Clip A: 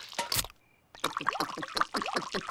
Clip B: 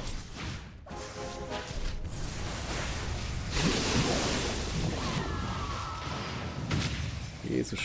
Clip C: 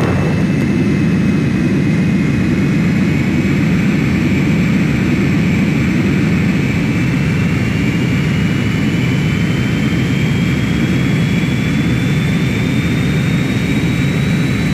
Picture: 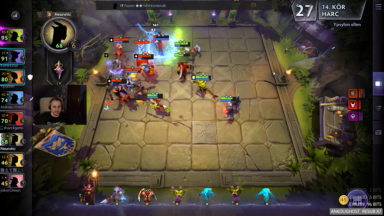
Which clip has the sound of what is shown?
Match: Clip B